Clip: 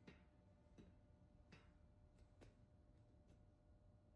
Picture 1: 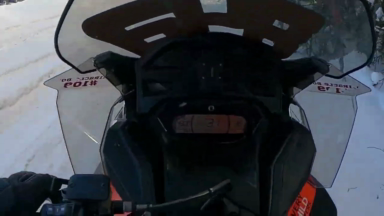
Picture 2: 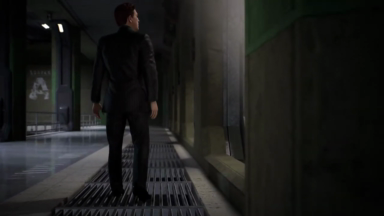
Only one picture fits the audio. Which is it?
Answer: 2